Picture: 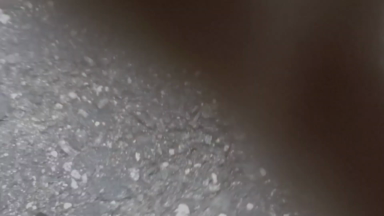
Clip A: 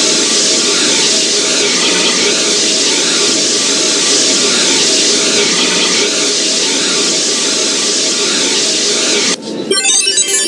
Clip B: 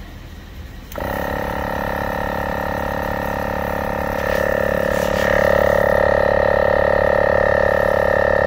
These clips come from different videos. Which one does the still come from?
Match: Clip B